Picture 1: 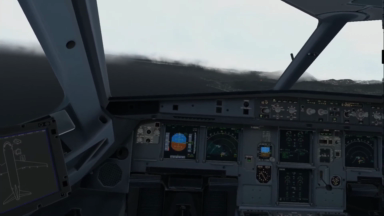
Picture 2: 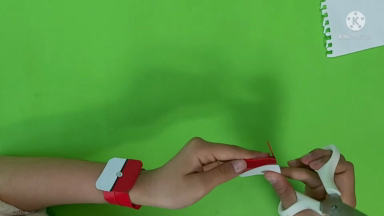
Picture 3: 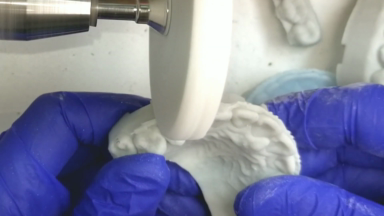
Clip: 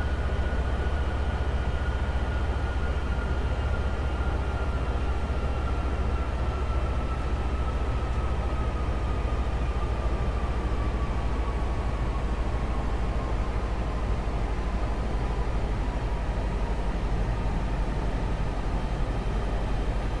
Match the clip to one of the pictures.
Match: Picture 1